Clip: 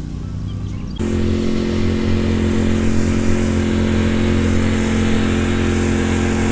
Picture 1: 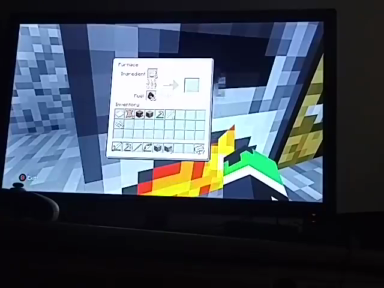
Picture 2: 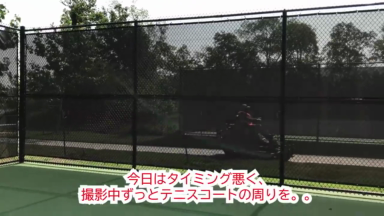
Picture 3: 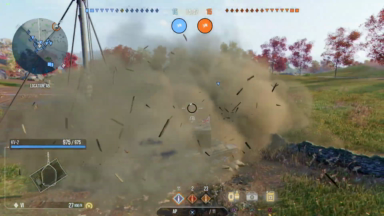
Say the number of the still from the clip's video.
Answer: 2